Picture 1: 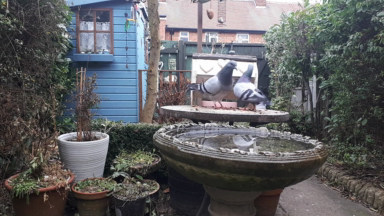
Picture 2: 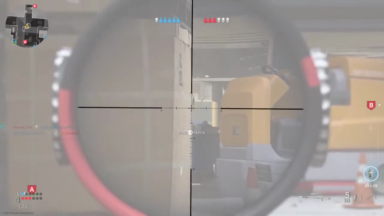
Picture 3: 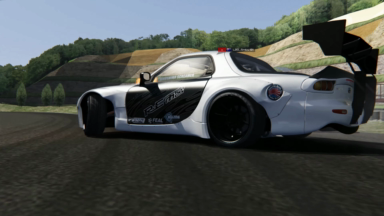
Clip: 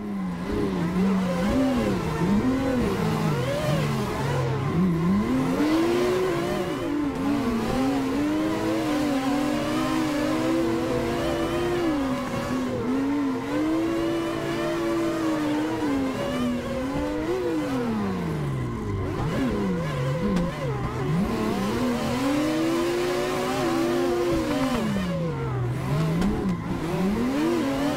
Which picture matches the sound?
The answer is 3